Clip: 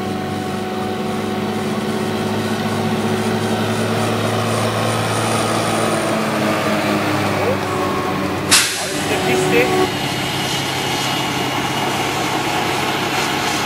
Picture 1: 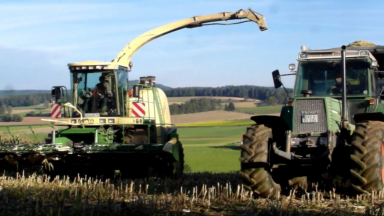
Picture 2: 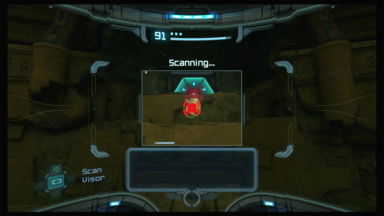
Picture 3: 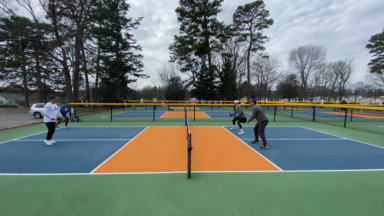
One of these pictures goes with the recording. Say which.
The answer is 1